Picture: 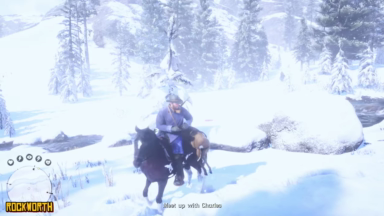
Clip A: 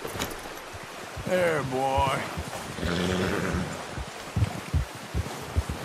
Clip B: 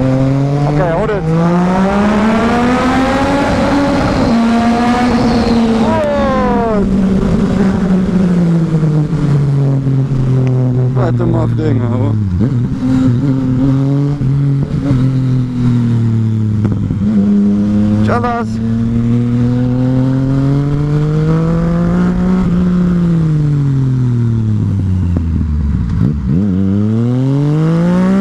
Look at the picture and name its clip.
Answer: A